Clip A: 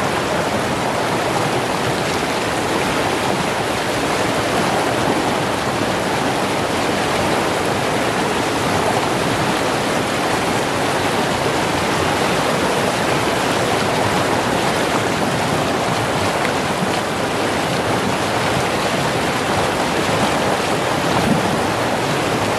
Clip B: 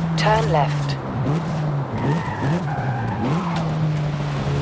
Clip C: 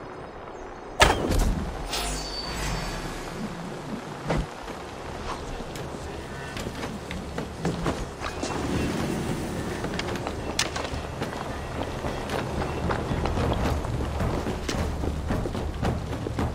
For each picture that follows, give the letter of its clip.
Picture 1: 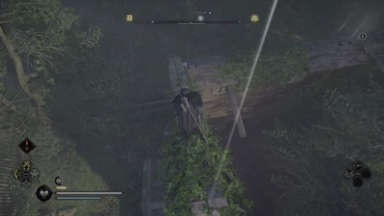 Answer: C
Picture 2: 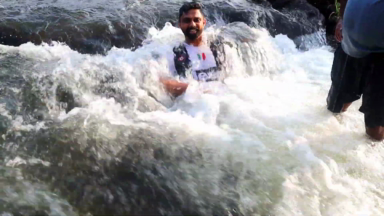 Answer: A